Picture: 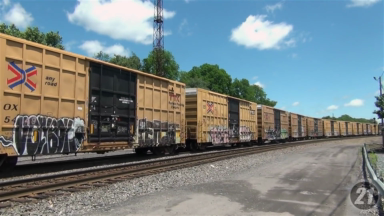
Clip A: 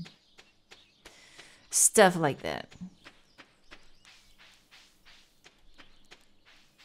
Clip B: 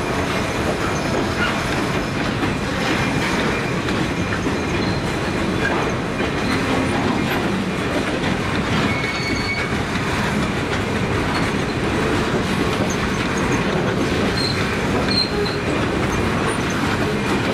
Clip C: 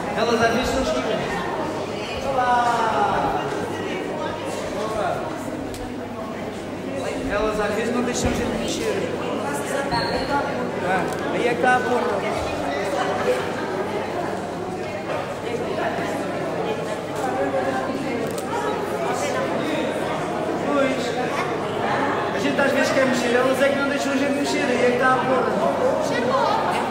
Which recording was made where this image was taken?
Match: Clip B